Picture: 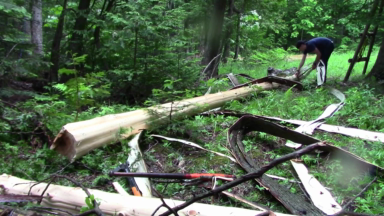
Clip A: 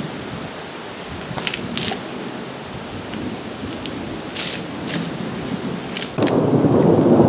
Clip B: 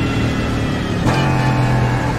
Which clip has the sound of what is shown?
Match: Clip A